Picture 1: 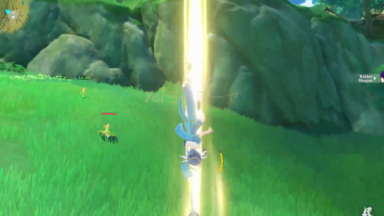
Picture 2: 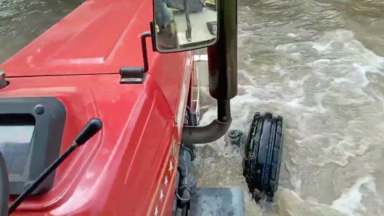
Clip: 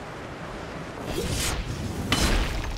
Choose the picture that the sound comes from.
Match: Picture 1